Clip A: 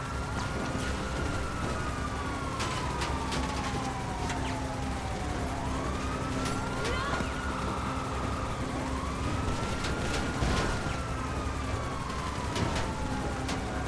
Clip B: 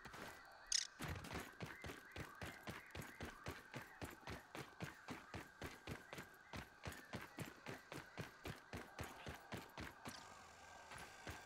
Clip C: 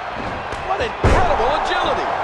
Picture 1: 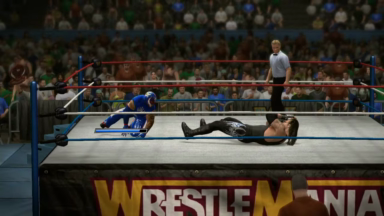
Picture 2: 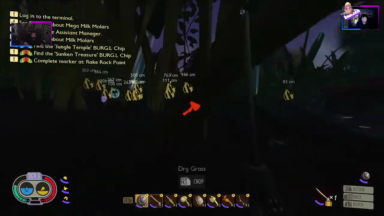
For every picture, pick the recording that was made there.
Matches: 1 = C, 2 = B